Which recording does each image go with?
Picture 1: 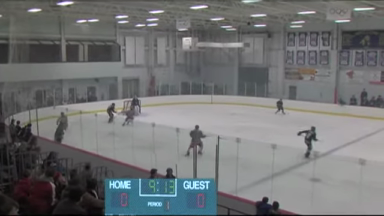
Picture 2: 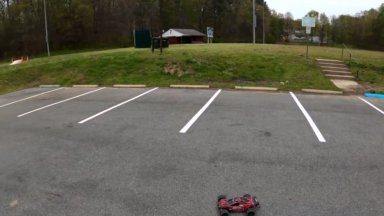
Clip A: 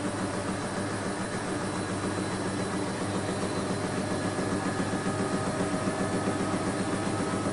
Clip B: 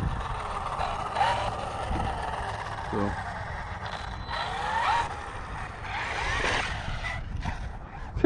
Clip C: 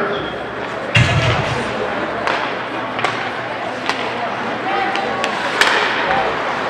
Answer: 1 C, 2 B